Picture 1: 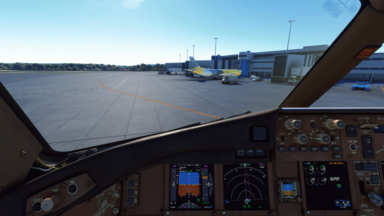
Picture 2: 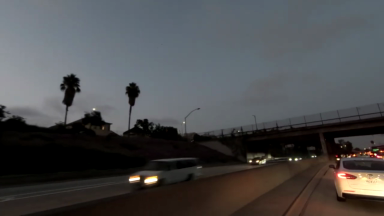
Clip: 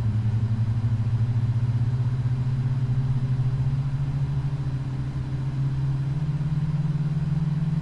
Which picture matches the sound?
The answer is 1